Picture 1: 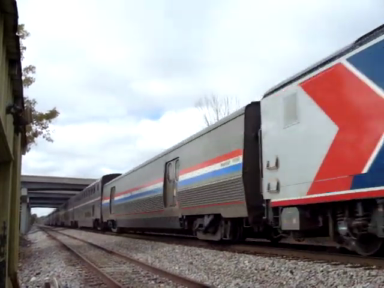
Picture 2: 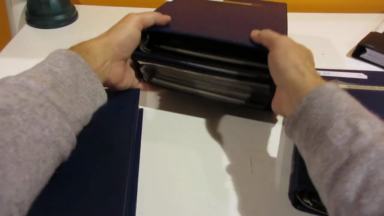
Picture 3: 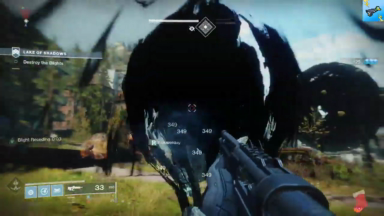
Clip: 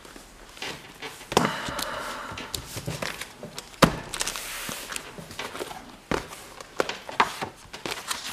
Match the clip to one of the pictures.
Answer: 2